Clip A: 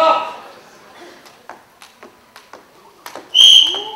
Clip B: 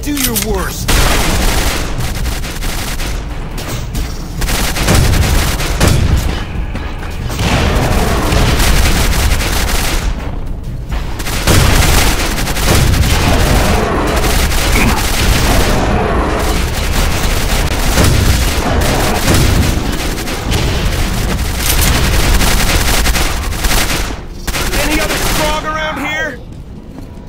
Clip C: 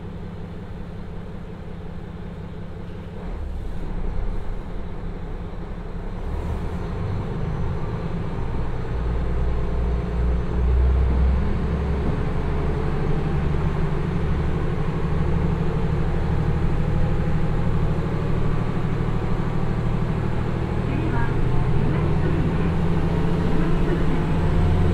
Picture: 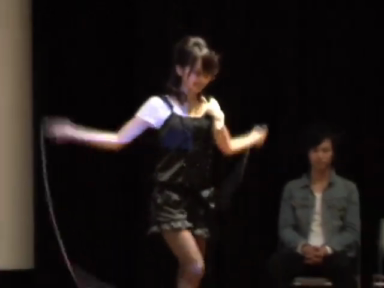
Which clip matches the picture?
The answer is A